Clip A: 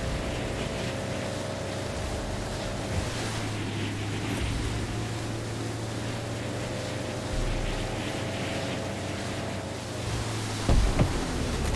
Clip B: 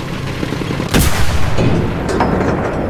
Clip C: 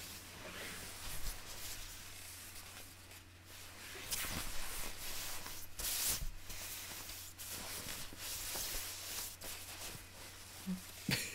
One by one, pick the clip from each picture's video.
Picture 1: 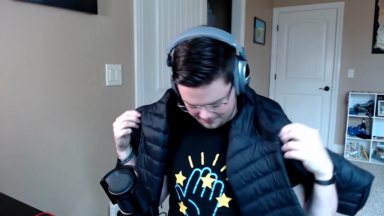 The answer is C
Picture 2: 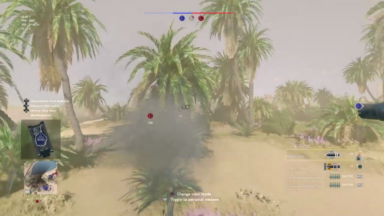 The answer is B